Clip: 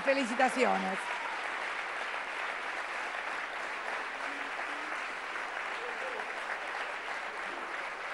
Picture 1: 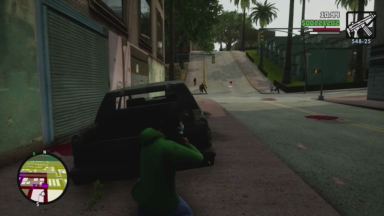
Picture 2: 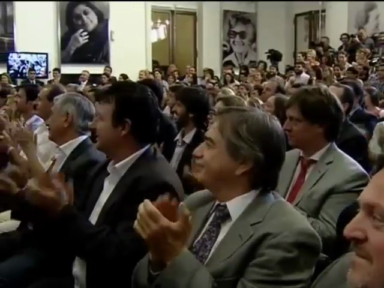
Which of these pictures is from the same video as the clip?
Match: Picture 2